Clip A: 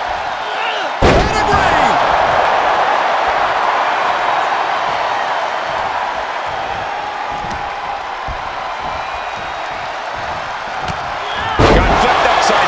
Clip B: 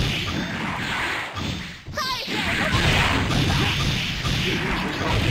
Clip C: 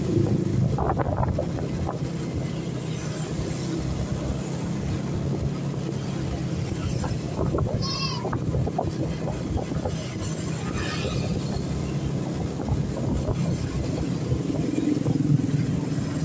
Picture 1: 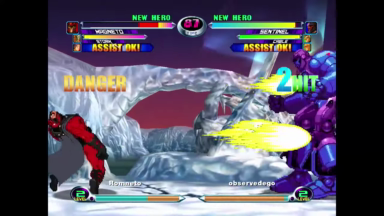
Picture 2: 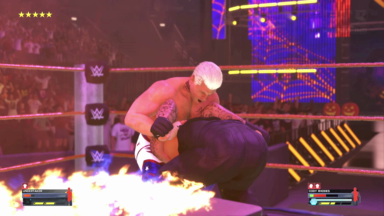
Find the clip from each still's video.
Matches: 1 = B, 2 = A